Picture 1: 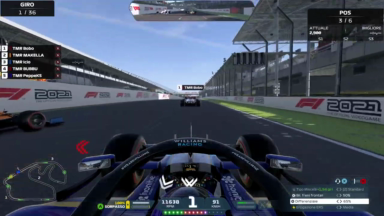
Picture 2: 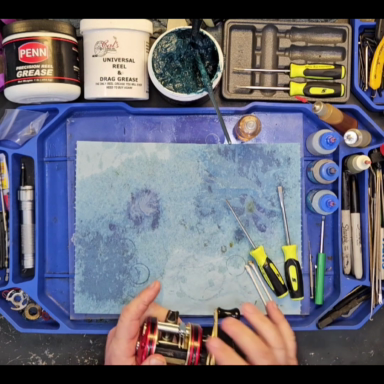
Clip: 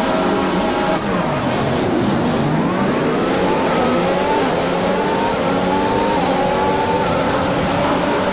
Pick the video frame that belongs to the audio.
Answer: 1